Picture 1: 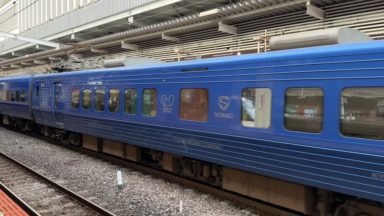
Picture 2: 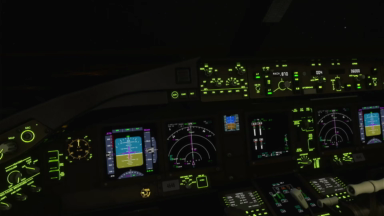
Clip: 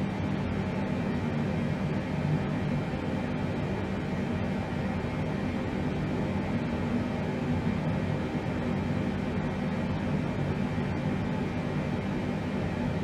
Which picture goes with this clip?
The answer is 2